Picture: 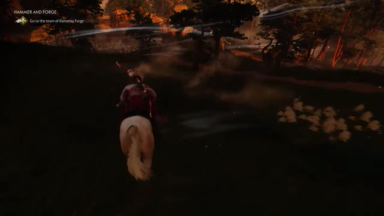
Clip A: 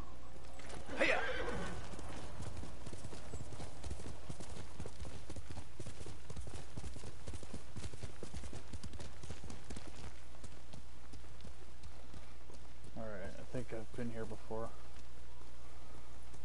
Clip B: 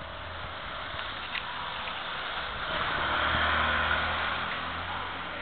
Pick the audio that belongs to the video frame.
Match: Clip A